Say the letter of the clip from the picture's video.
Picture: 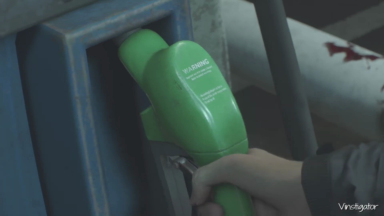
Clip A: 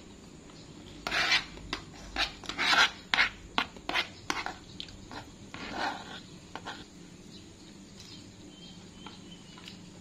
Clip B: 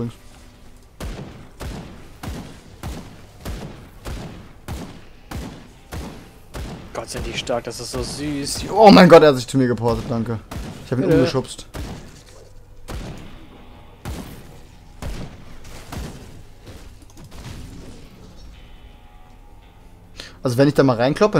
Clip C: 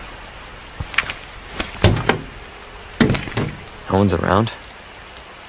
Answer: C